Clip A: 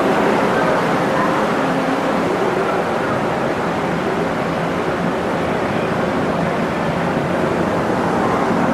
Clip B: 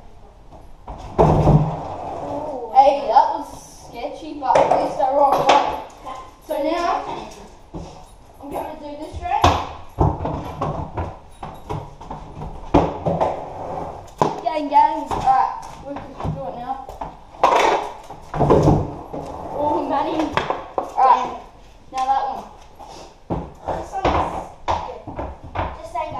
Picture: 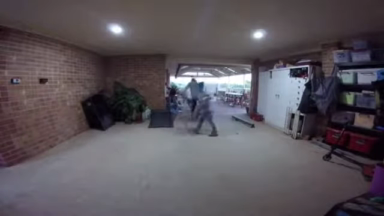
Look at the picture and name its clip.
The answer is B